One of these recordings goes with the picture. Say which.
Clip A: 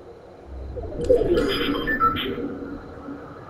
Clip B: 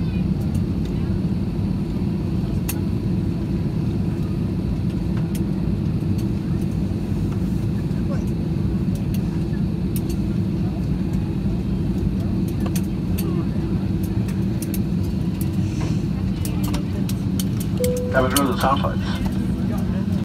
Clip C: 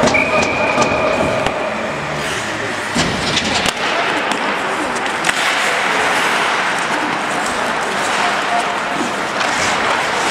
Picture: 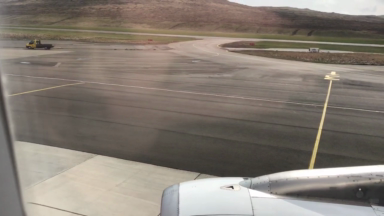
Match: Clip B